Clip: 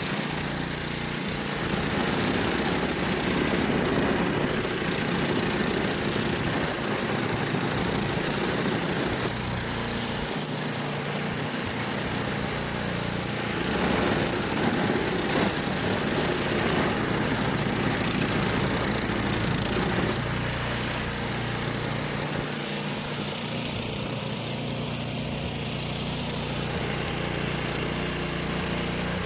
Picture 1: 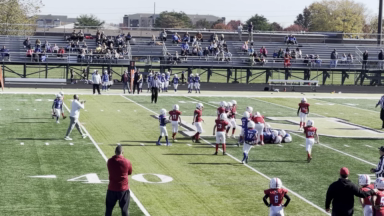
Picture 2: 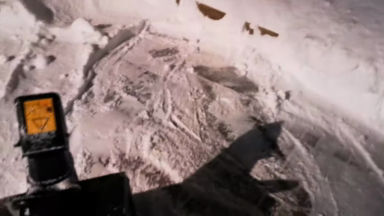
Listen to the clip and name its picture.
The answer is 2